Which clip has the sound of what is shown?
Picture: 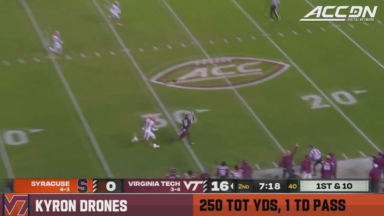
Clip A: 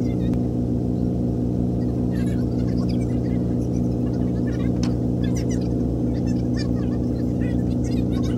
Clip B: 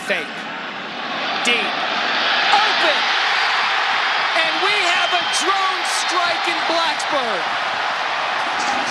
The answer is B